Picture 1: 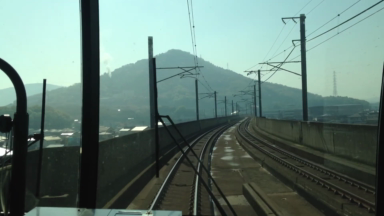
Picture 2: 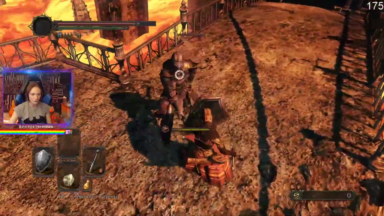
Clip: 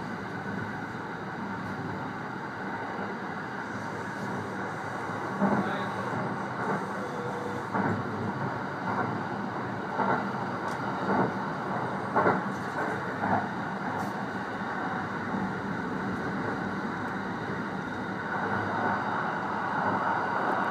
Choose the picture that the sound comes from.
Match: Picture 1